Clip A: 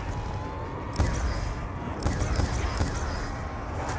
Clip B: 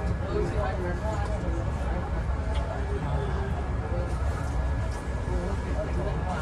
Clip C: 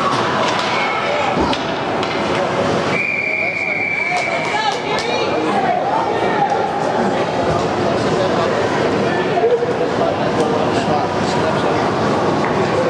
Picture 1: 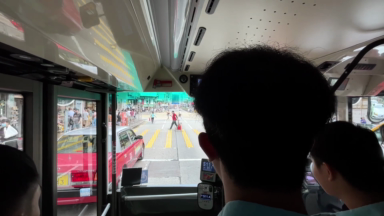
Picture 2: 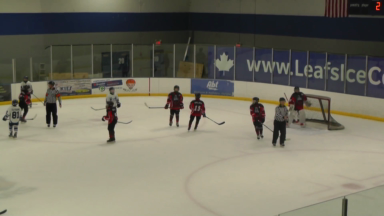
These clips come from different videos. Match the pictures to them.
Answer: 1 B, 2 C